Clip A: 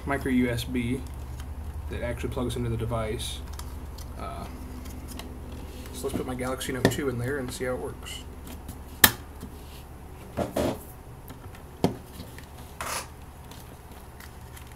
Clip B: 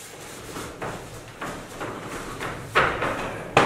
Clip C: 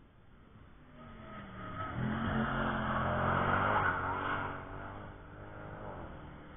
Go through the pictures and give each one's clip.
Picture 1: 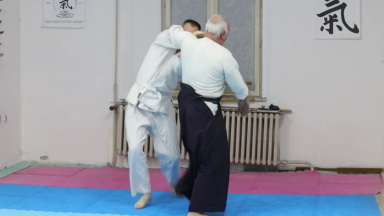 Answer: B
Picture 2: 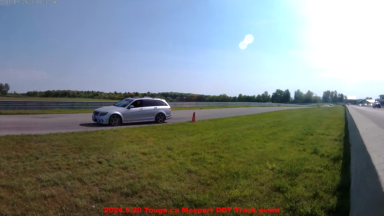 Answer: C